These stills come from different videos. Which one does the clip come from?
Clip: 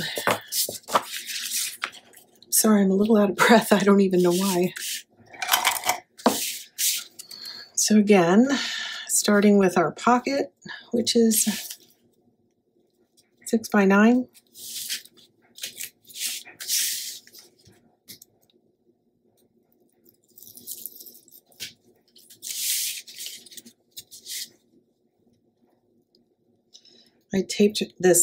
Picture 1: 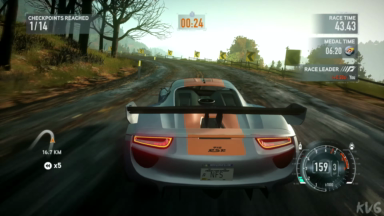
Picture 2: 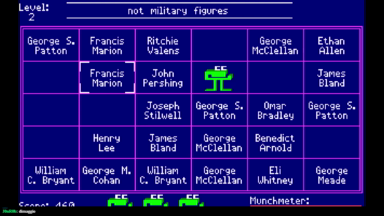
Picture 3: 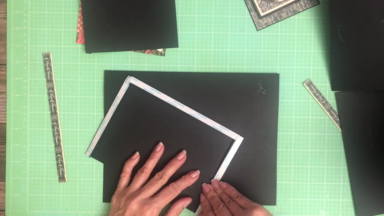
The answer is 3